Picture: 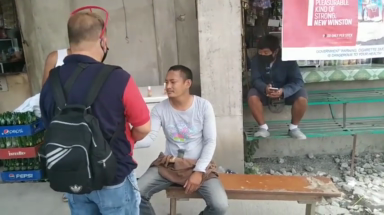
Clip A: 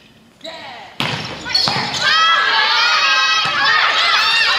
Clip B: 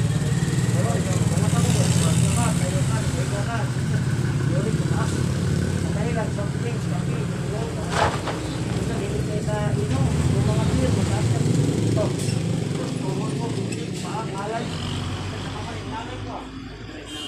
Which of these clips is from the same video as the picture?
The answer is B